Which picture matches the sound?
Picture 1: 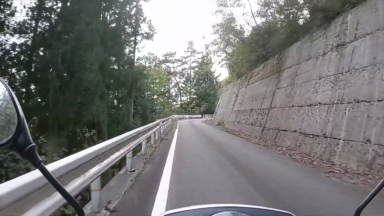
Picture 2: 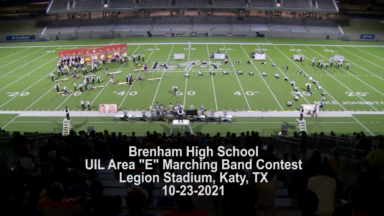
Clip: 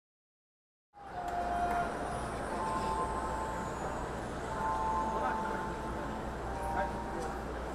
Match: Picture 2